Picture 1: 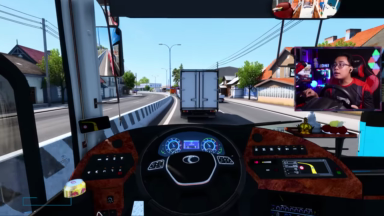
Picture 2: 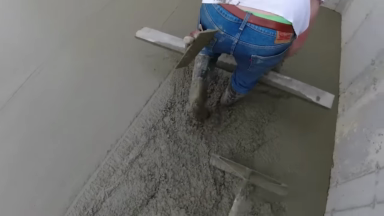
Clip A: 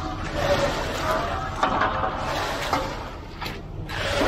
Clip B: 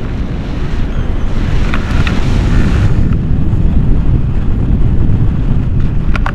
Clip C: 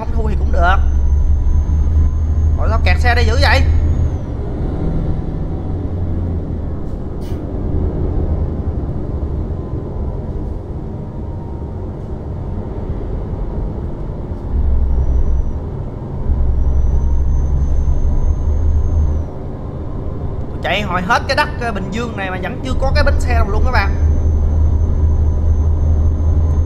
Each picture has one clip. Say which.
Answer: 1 C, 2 A